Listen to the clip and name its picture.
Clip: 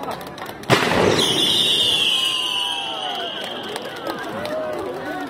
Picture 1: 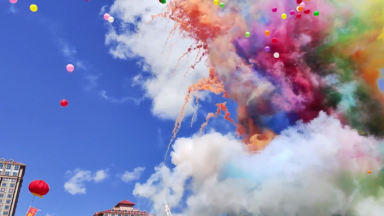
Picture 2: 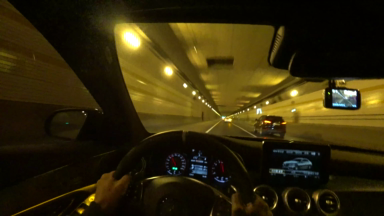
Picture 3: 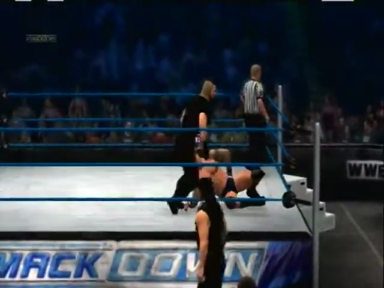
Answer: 1